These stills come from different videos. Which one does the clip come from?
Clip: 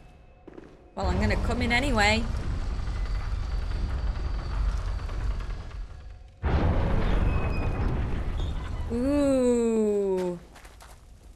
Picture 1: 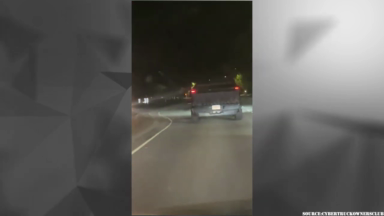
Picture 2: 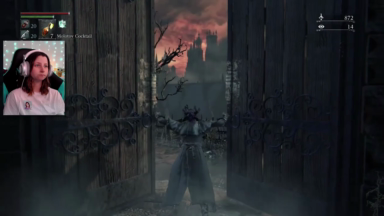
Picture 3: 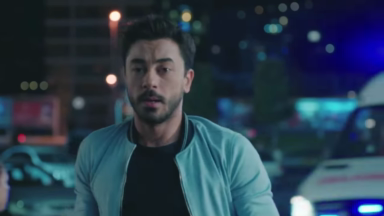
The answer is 2